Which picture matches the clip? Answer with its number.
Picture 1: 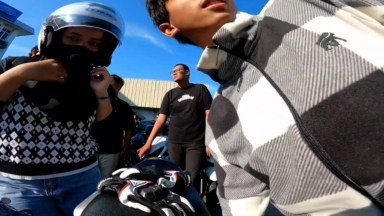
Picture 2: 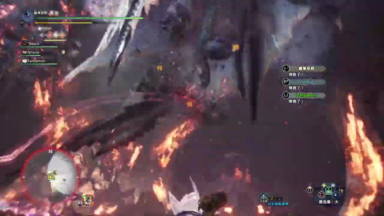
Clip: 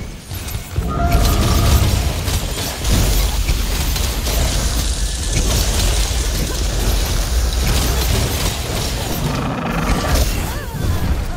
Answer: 2